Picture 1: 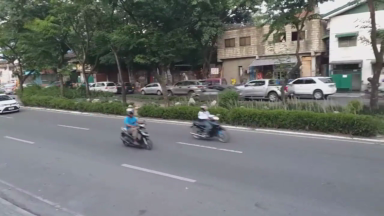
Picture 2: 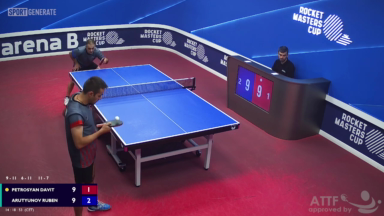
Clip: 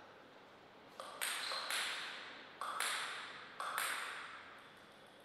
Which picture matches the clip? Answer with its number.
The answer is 2